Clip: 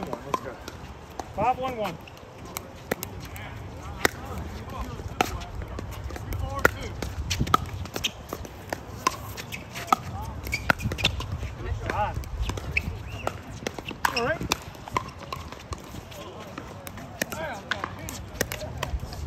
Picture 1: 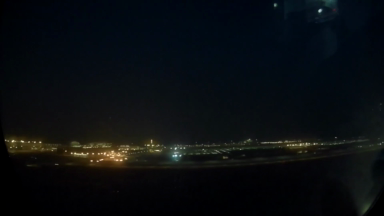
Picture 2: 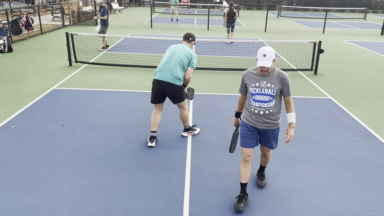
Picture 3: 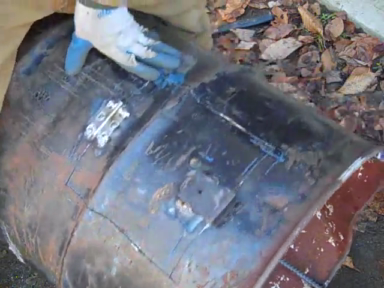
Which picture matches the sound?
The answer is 2